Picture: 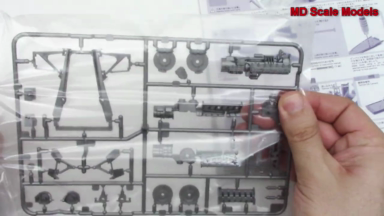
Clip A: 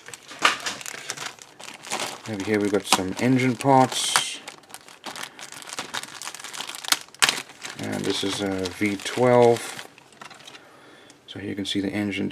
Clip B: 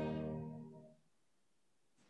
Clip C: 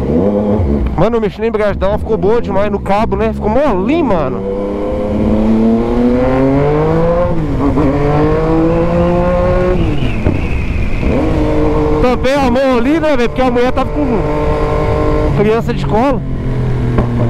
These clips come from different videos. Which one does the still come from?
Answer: A